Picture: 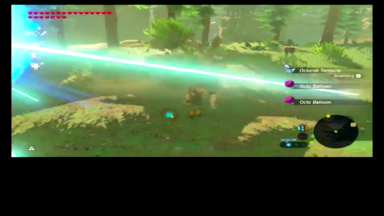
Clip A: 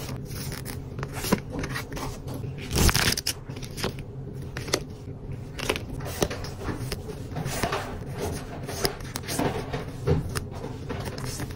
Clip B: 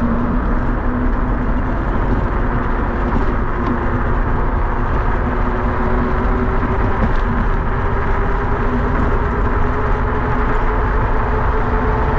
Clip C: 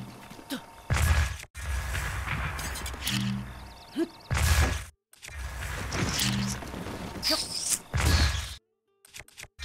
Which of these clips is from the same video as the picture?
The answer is C